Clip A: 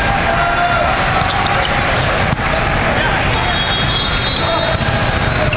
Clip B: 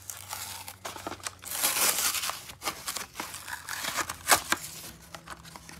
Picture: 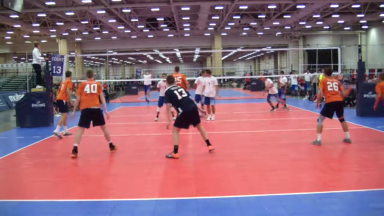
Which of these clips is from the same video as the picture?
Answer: A